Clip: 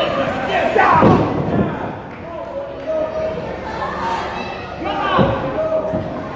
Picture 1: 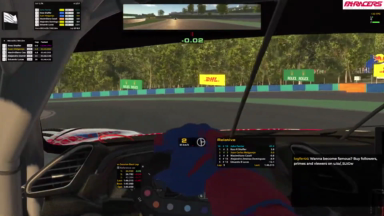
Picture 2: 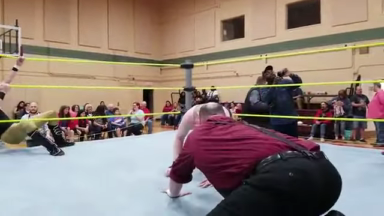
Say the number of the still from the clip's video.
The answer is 2